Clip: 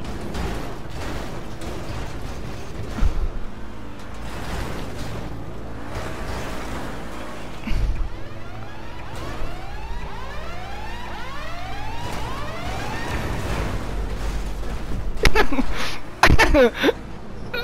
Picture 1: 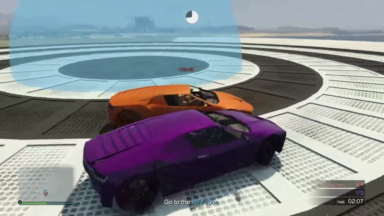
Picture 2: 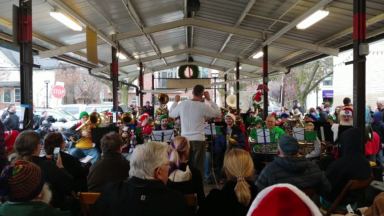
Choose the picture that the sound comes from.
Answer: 1